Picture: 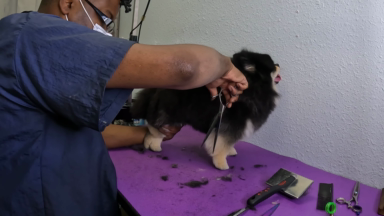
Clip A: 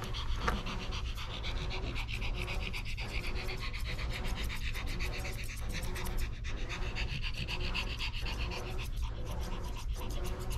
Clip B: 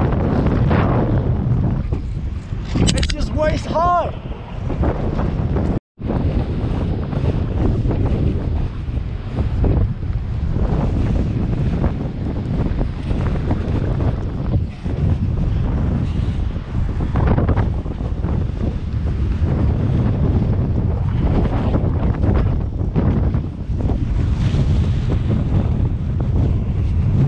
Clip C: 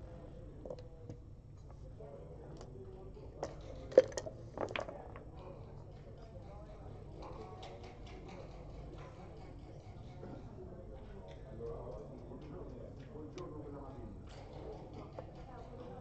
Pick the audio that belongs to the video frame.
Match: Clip A